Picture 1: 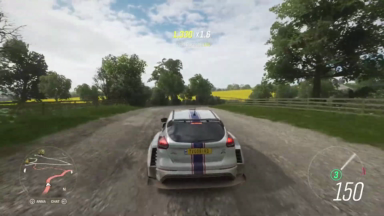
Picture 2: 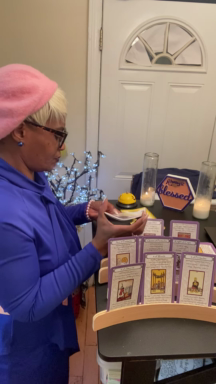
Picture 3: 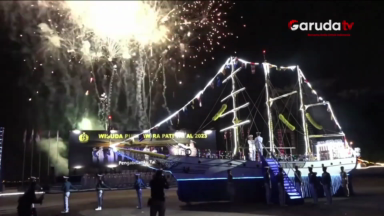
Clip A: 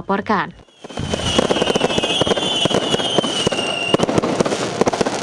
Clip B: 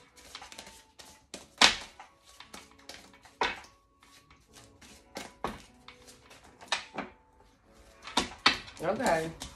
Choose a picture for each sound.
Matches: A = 3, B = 2